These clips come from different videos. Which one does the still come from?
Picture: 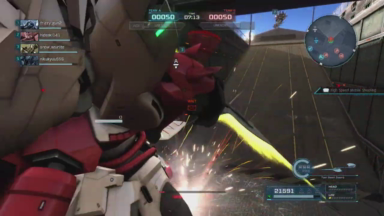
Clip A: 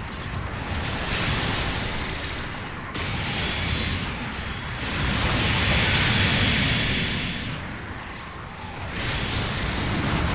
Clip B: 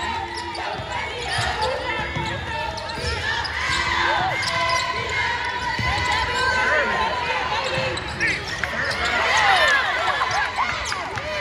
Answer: A